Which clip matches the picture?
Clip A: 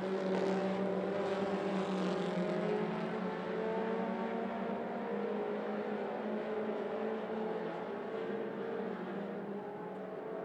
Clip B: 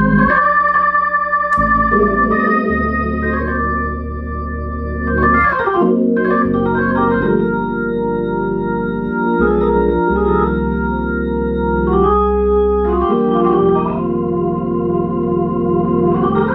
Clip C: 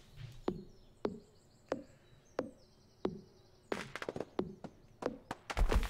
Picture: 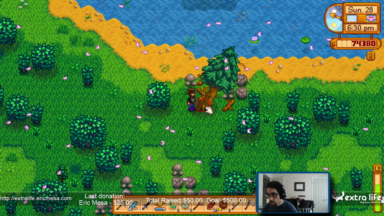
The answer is C